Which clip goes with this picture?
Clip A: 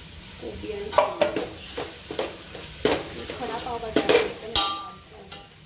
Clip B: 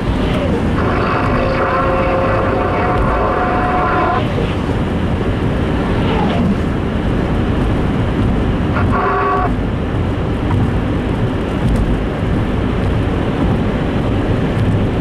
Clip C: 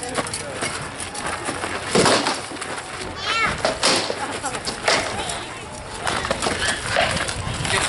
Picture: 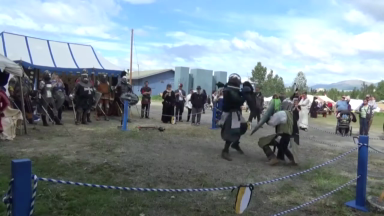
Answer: C